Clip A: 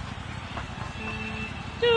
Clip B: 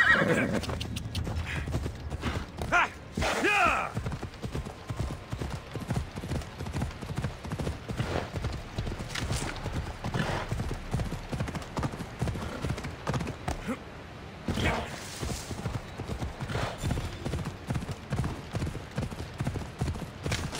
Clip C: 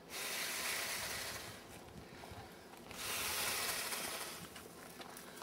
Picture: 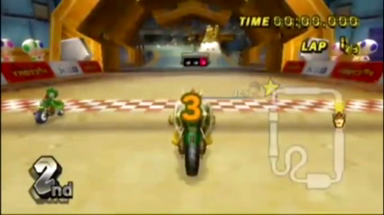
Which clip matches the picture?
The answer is A